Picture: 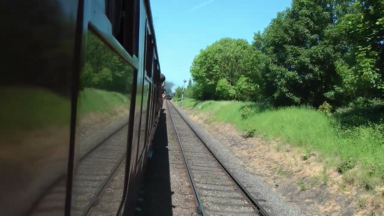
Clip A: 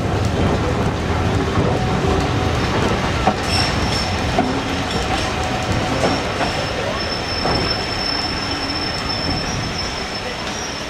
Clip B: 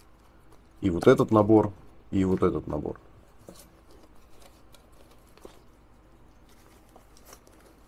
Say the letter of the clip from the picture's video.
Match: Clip A